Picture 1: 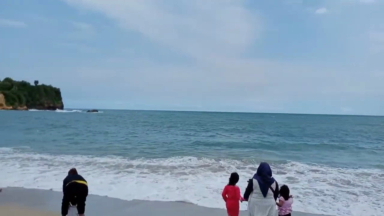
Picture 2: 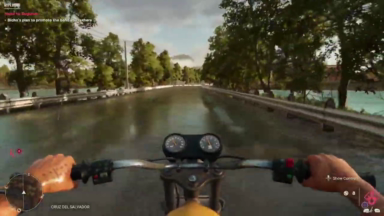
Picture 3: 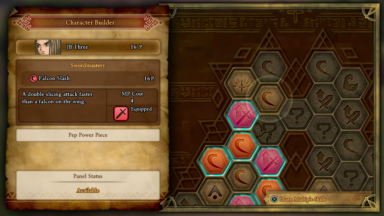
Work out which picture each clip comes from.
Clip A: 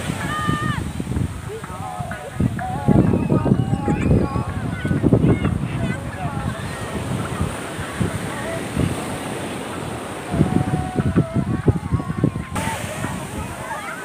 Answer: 1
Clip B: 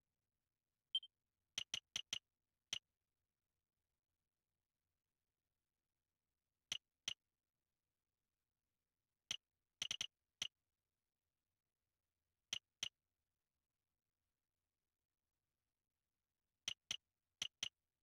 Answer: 3